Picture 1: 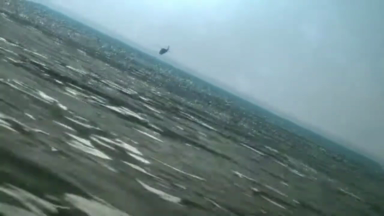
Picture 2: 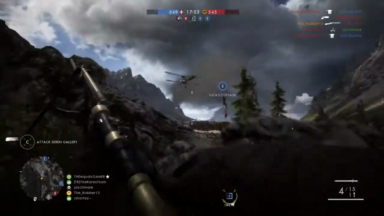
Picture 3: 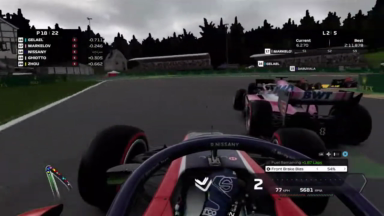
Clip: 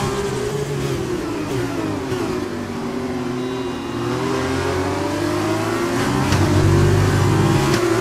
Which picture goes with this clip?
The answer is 3